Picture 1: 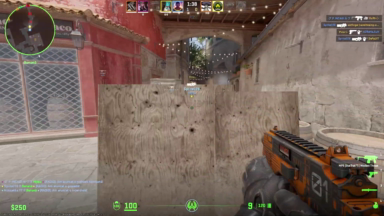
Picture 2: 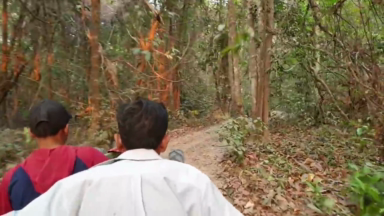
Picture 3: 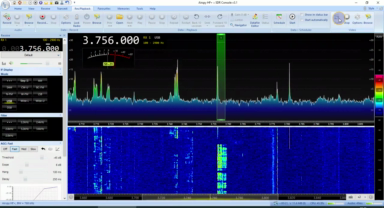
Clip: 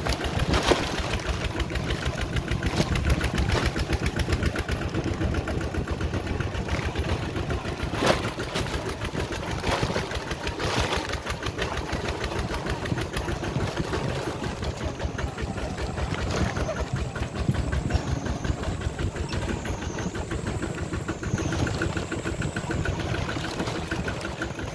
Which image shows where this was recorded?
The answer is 2